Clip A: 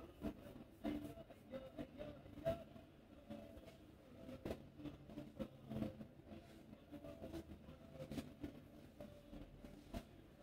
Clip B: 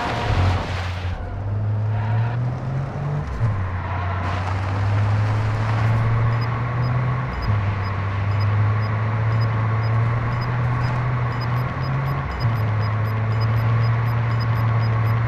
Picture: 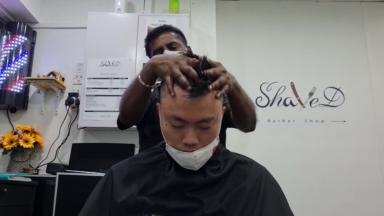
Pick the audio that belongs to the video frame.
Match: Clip A